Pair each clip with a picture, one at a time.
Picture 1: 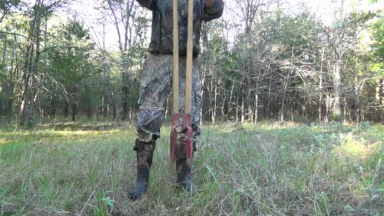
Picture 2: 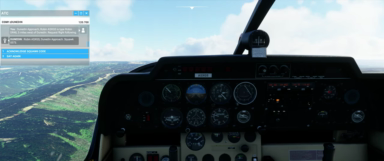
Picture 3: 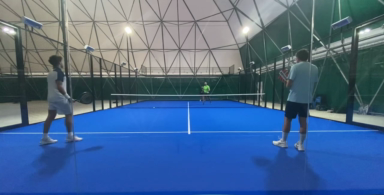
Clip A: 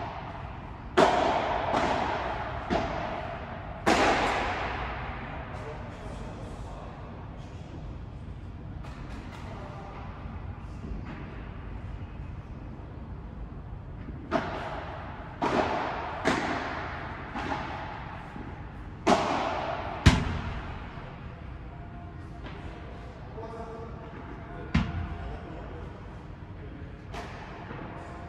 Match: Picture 3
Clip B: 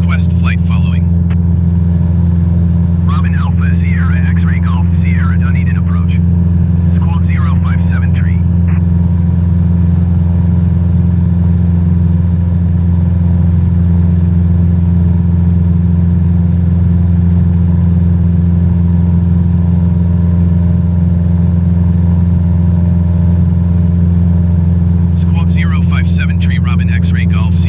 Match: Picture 2